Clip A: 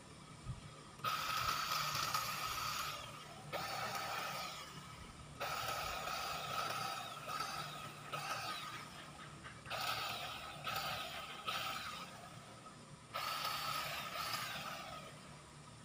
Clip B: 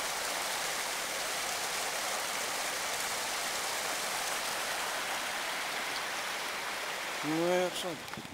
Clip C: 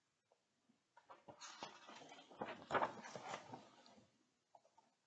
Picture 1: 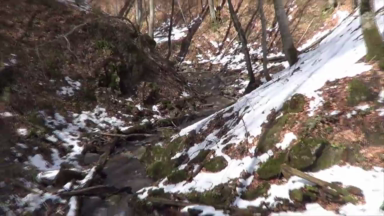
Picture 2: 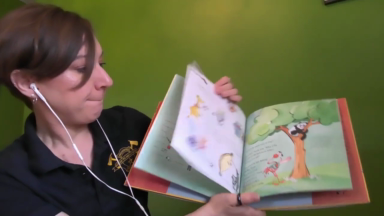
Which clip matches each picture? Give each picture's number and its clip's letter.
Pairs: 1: B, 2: C